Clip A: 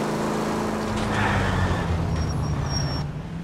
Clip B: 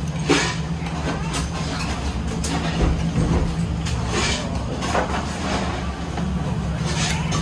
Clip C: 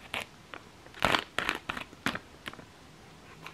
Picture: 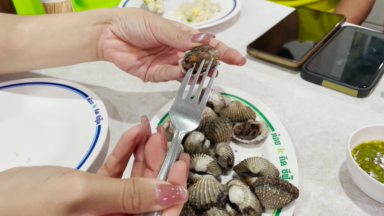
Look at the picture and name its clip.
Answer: B